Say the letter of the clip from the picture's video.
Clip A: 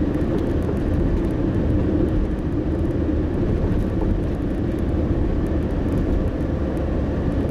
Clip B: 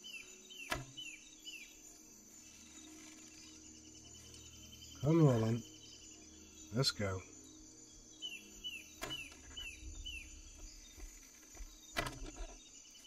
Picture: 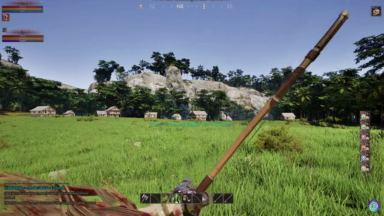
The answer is B